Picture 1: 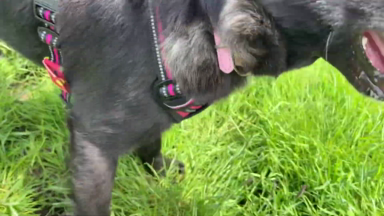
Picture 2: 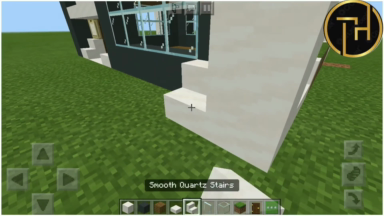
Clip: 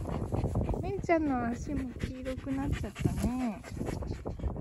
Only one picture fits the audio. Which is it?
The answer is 1